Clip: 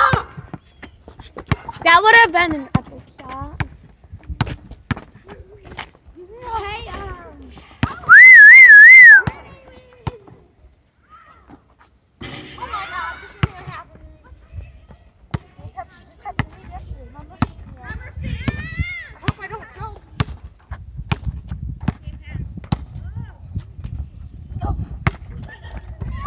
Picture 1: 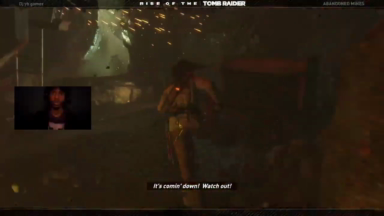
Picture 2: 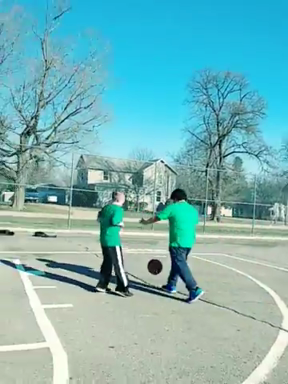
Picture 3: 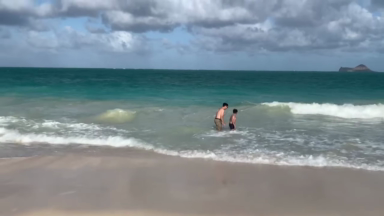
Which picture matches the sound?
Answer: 2